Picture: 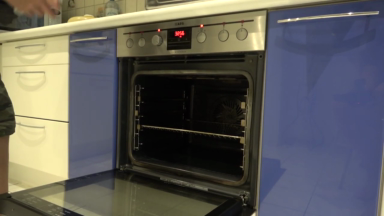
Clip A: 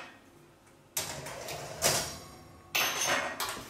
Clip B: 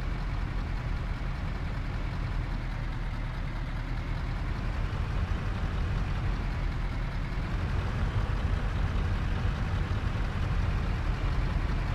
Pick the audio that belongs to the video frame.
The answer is A